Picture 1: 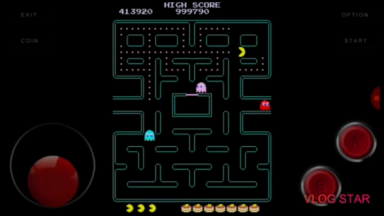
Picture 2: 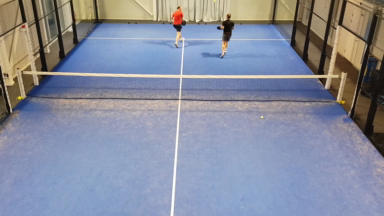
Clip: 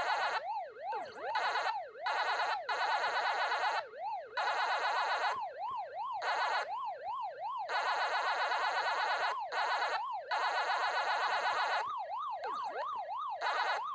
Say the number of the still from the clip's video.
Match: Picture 1